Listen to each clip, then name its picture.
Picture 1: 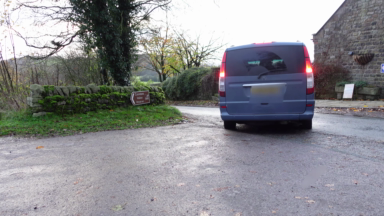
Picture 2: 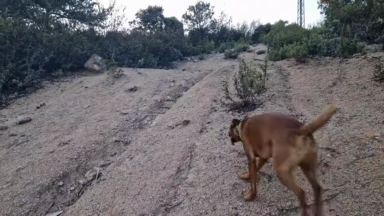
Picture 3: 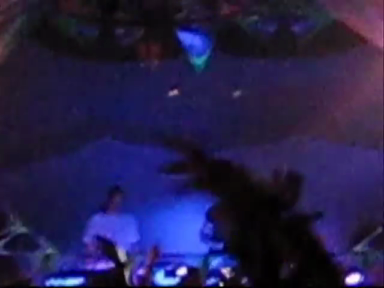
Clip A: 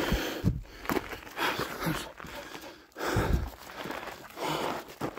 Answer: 2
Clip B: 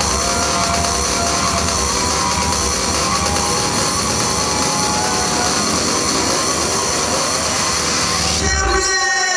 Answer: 3